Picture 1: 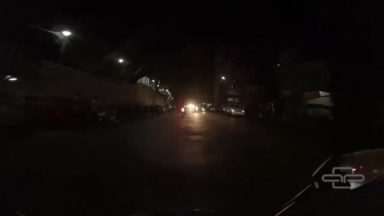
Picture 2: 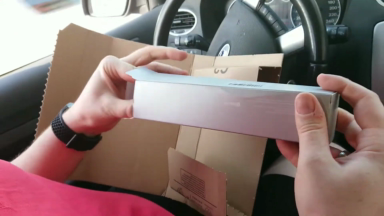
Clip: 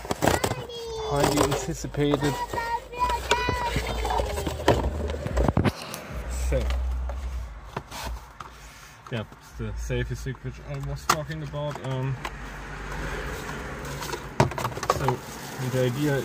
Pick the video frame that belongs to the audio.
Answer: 2